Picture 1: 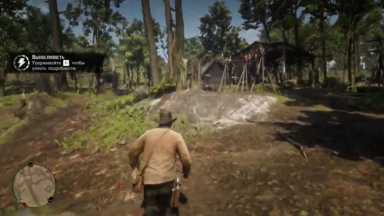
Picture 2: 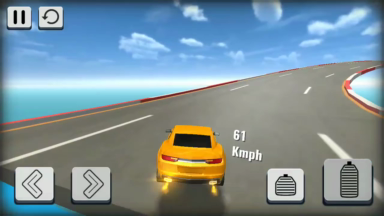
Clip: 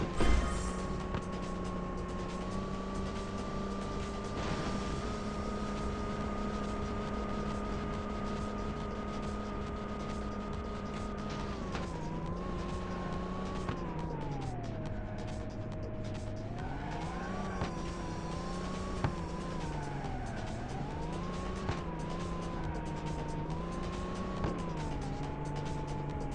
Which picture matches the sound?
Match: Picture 2